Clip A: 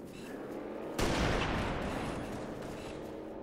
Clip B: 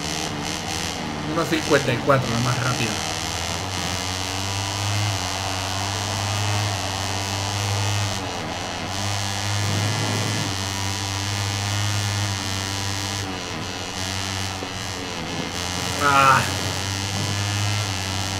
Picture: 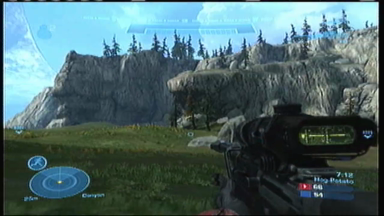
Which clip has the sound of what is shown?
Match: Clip A